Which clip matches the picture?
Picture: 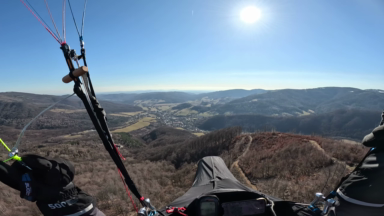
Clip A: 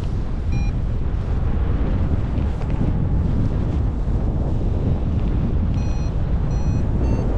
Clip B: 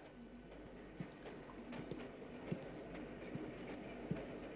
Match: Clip A